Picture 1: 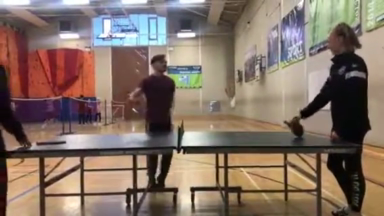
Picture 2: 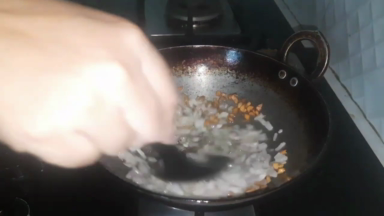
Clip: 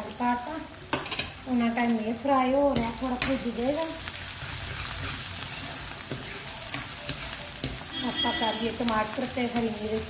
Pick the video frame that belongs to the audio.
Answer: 2